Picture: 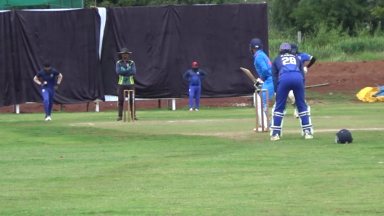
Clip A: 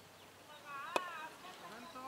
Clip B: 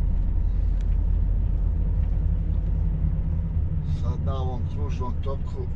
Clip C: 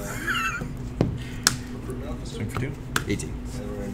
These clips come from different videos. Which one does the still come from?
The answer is A